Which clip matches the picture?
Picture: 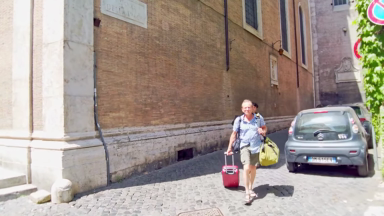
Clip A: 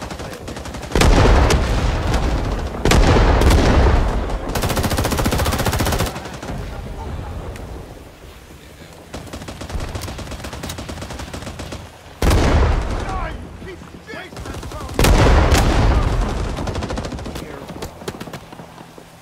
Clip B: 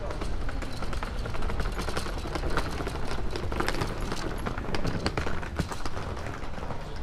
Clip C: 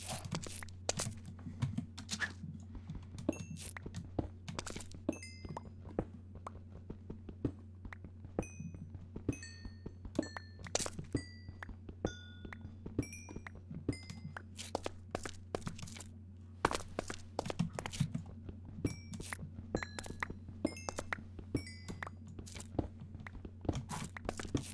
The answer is B